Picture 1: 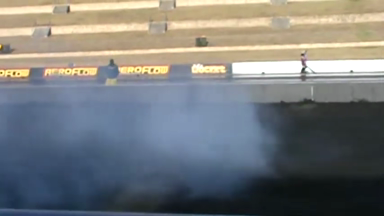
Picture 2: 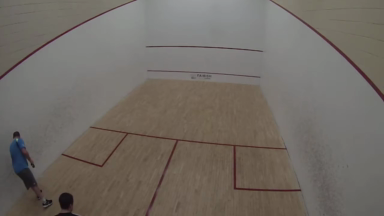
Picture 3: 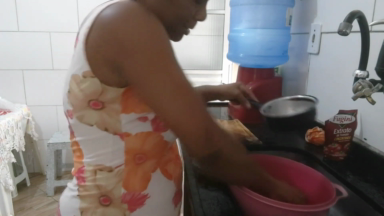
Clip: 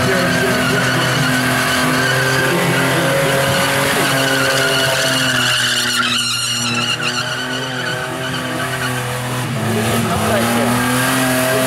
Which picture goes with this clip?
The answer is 1